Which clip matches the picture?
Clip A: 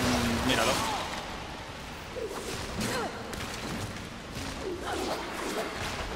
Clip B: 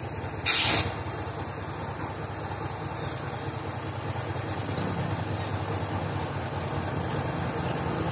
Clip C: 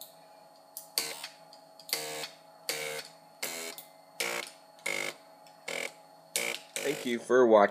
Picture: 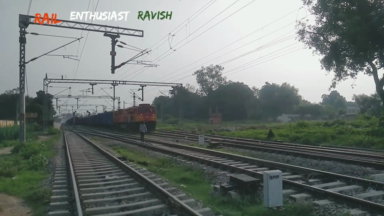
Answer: B